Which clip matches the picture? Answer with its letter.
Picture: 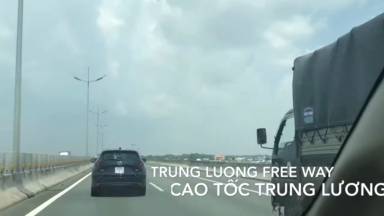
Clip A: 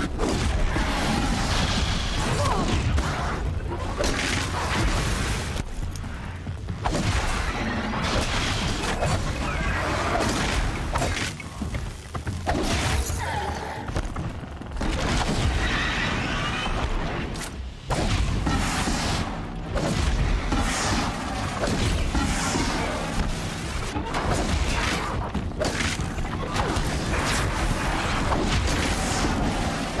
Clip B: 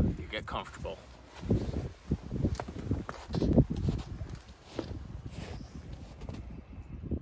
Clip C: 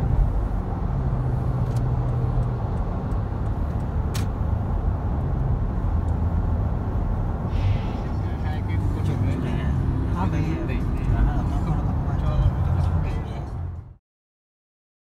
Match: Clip C